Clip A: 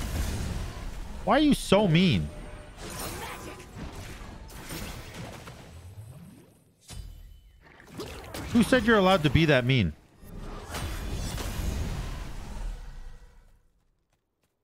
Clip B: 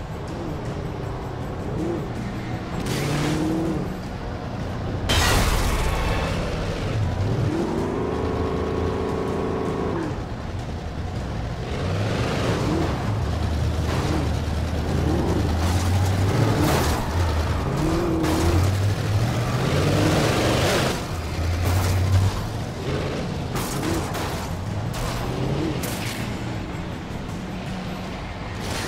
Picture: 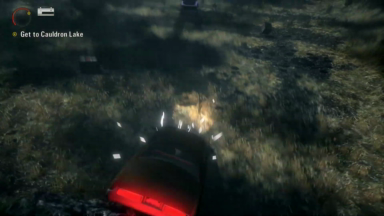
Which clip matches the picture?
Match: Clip B